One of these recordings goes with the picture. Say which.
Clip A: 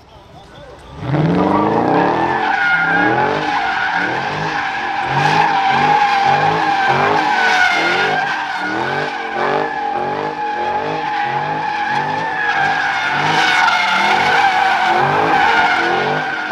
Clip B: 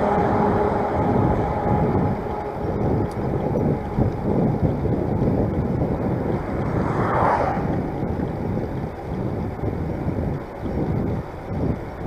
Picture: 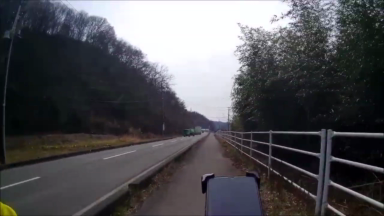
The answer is B